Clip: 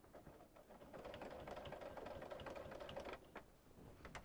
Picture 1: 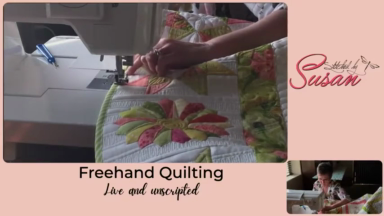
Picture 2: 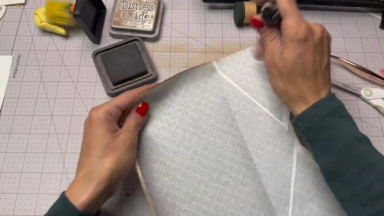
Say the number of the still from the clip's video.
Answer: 1